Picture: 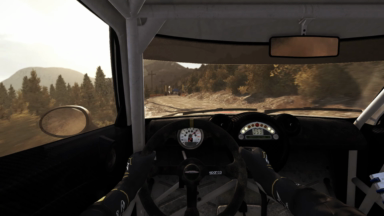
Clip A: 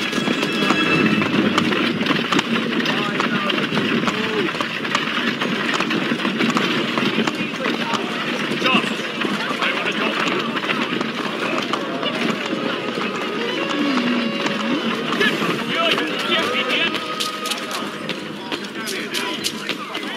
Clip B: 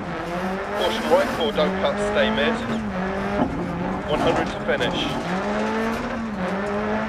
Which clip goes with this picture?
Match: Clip B